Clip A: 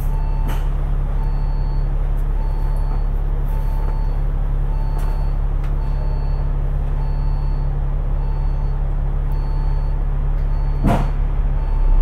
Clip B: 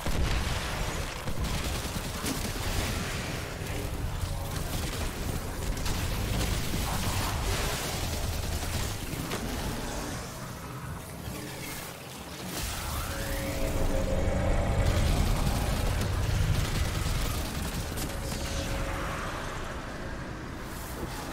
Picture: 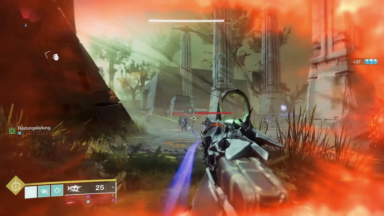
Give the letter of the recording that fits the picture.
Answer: B